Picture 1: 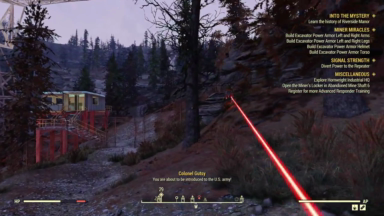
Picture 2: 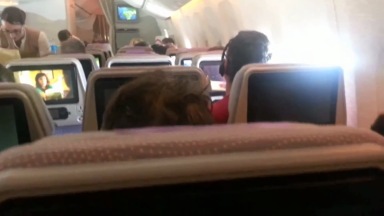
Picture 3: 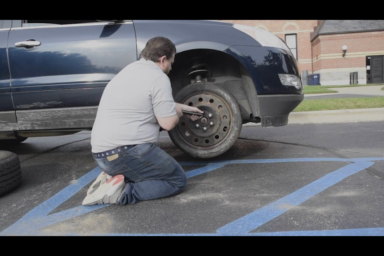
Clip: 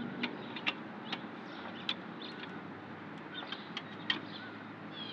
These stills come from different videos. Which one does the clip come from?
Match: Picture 3